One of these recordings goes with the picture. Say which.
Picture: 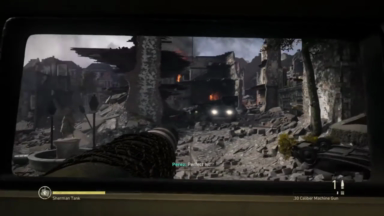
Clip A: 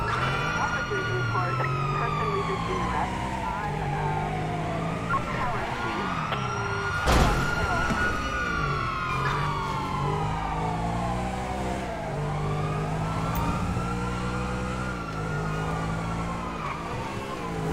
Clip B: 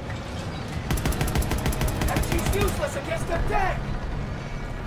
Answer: B